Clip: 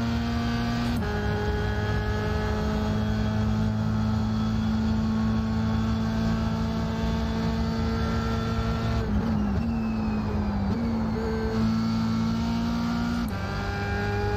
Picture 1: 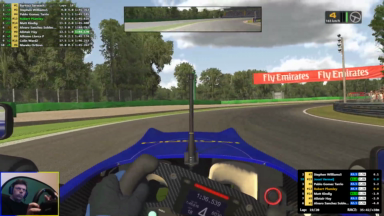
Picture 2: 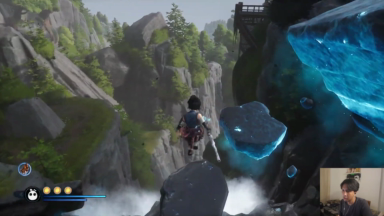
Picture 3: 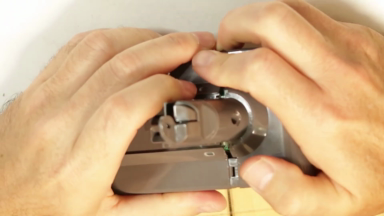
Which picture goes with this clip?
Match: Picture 1